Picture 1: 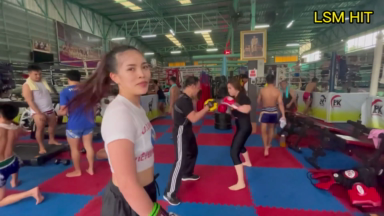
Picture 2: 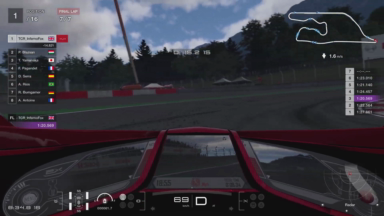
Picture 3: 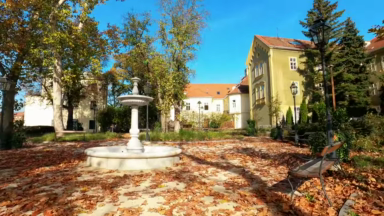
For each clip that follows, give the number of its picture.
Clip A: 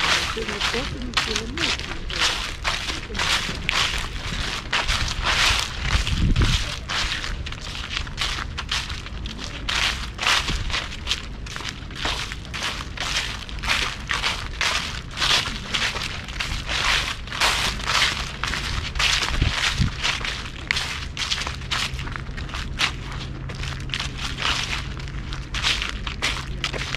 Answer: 3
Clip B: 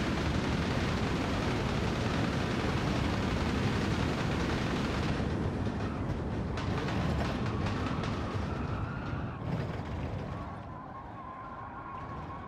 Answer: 2